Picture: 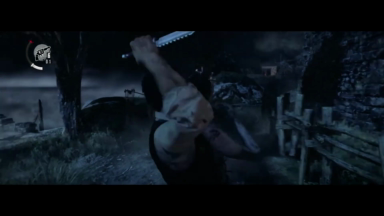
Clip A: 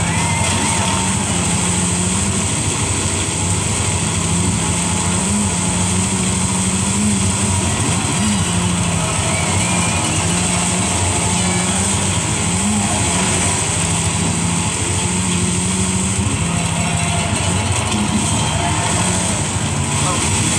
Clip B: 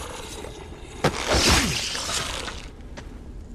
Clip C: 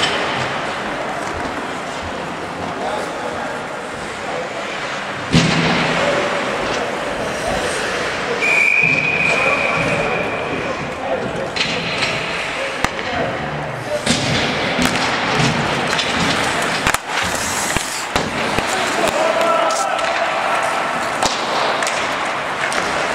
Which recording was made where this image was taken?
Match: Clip B